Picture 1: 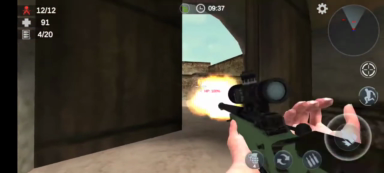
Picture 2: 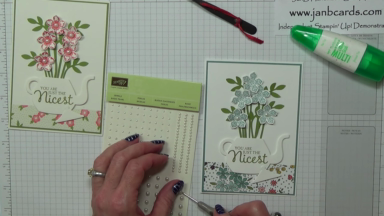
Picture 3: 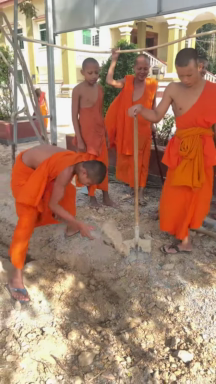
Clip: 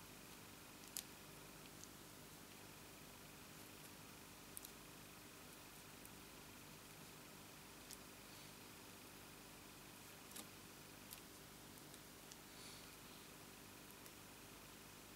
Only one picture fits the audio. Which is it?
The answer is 2